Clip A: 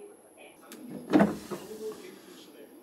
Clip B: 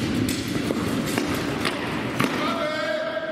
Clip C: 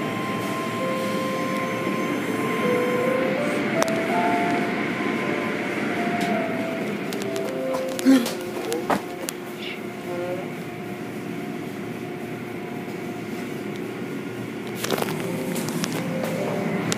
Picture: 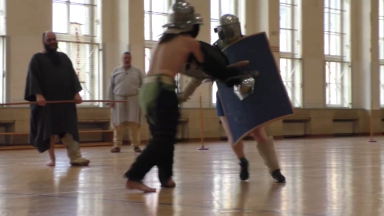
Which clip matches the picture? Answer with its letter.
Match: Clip B